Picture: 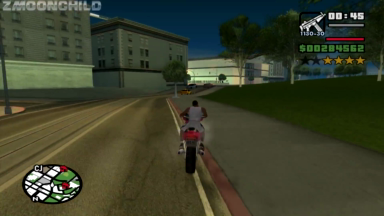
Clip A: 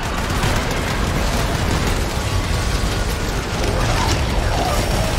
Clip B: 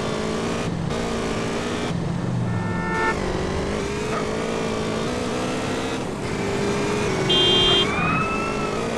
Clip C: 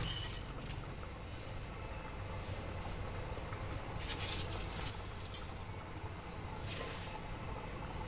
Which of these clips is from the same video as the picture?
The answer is B